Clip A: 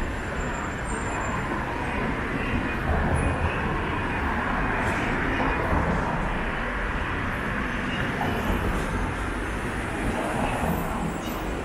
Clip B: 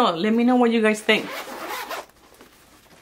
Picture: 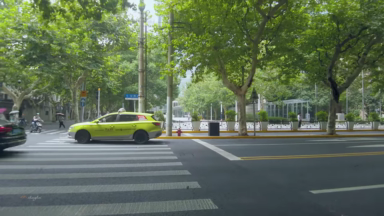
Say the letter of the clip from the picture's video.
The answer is A